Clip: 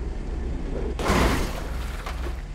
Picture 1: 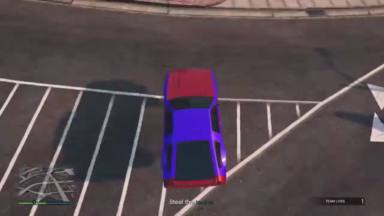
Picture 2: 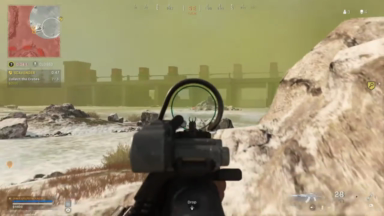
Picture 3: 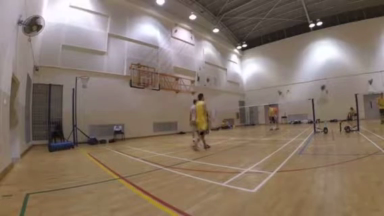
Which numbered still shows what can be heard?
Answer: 1